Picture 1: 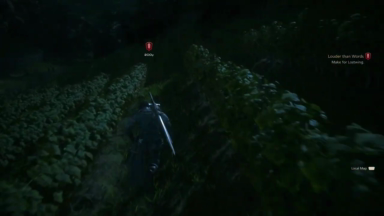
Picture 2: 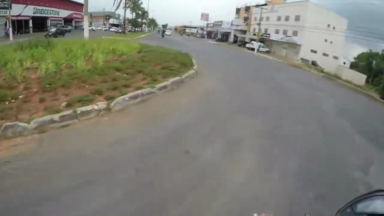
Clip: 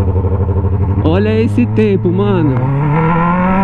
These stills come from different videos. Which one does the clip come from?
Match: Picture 2